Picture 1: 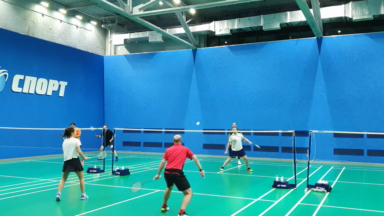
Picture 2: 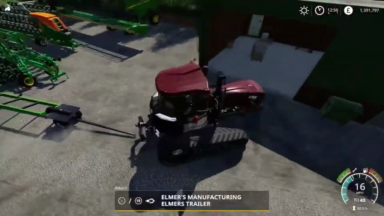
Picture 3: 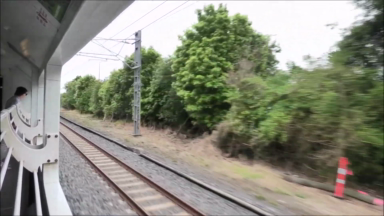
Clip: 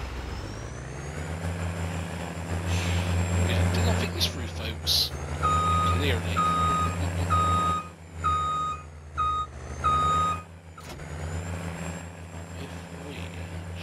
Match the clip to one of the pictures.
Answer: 2